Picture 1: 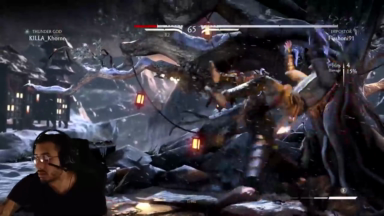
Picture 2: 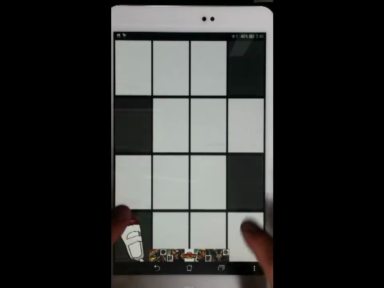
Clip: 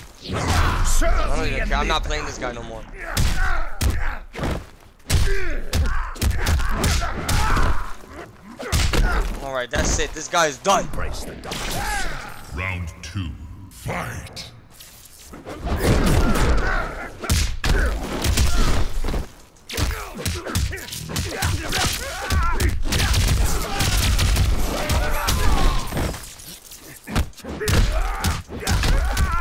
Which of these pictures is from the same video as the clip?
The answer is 1